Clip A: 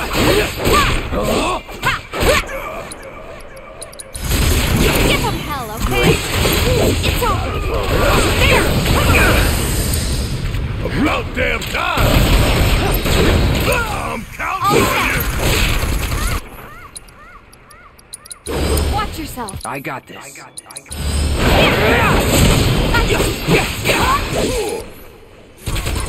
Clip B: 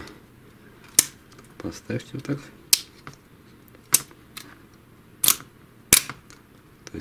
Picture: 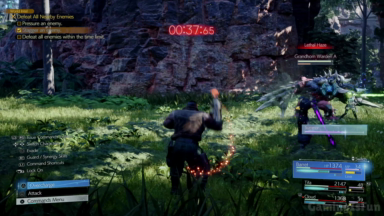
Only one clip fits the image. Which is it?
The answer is A